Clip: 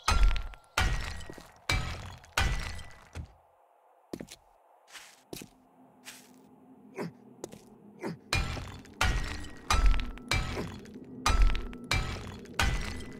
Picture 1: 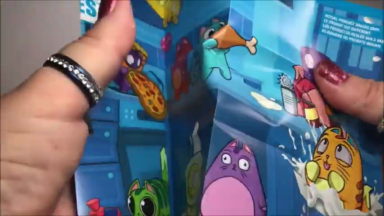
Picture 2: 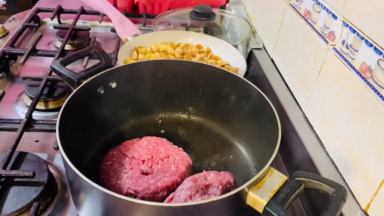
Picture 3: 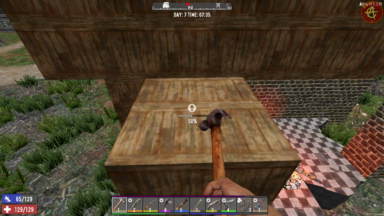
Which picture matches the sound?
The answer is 3